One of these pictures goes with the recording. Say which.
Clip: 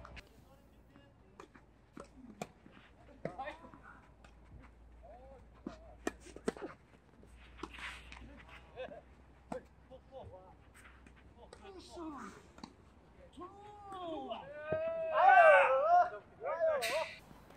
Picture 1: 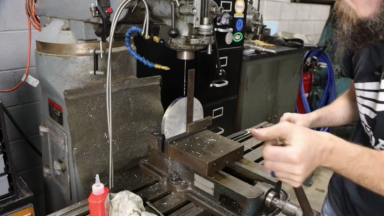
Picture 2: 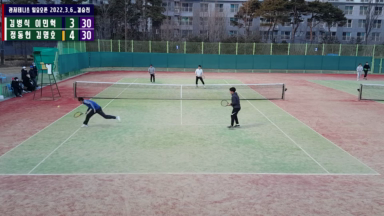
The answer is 2